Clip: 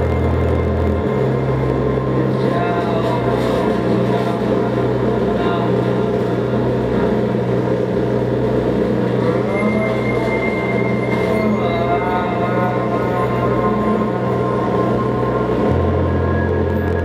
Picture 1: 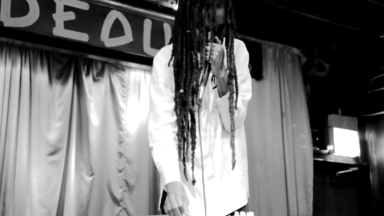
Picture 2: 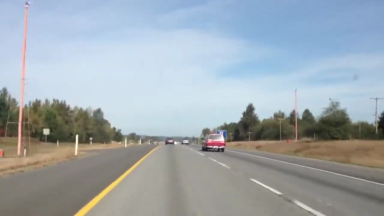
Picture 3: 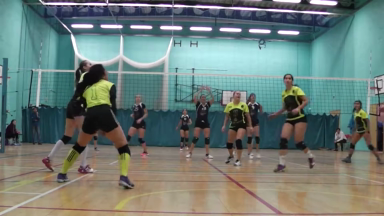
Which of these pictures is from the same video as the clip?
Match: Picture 1